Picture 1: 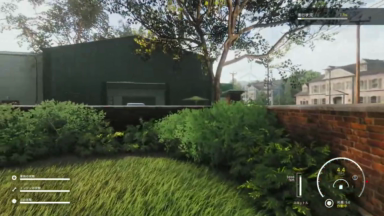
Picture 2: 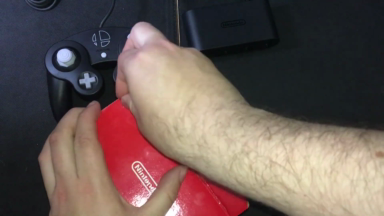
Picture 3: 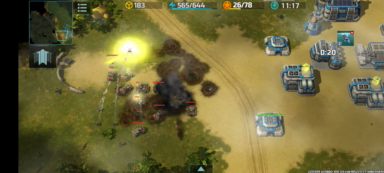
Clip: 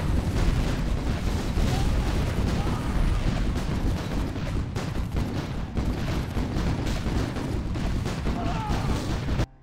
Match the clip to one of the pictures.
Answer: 3